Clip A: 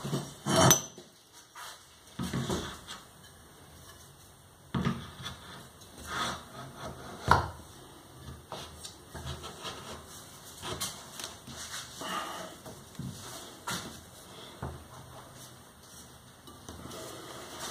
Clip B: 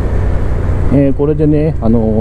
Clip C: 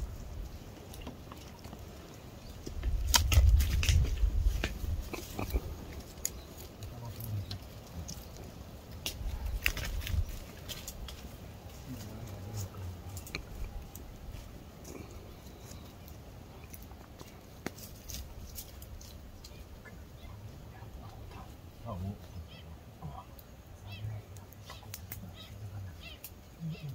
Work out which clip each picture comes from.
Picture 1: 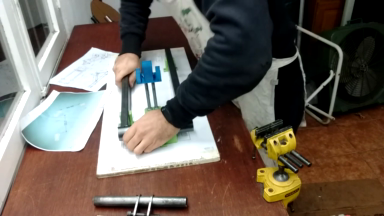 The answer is A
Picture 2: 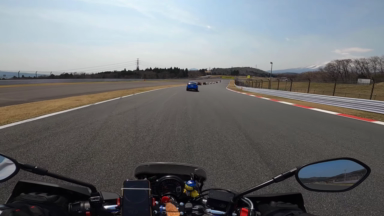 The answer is B